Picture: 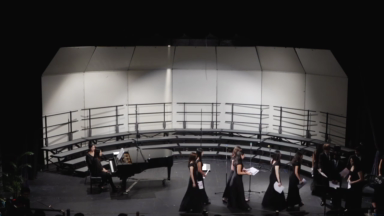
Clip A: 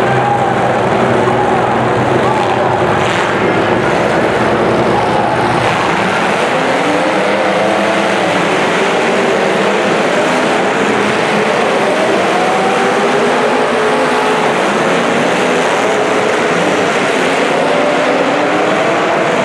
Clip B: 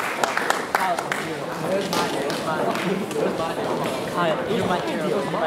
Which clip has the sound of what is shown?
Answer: B